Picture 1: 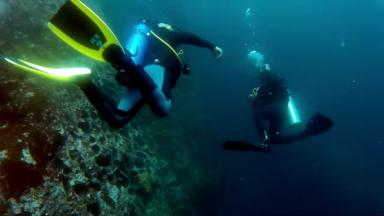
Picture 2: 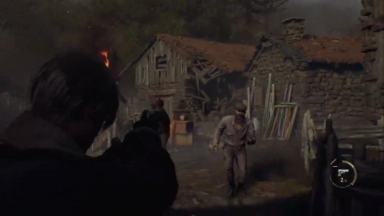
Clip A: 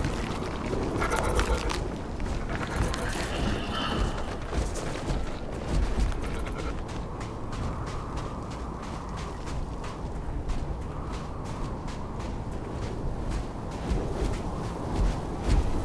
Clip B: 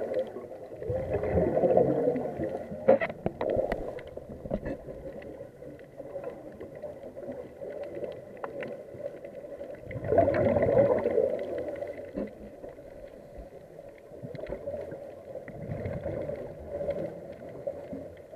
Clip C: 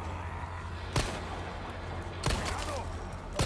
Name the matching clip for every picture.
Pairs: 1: B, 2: C